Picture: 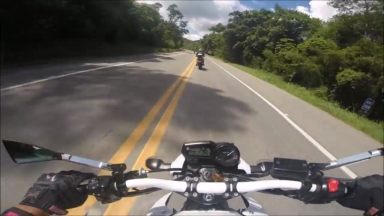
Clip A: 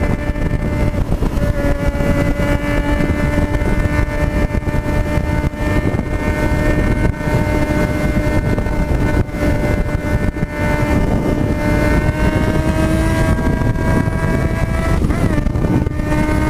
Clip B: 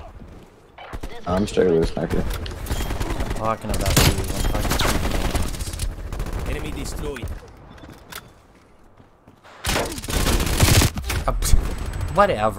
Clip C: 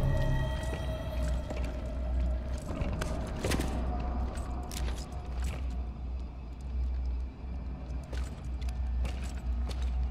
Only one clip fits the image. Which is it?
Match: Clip A